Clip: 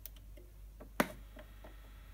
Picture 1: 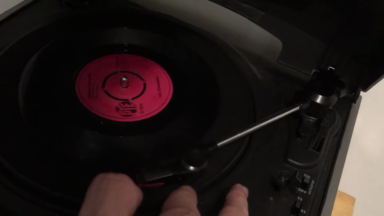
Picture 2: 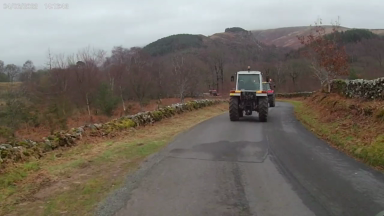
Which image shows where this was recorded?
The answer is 1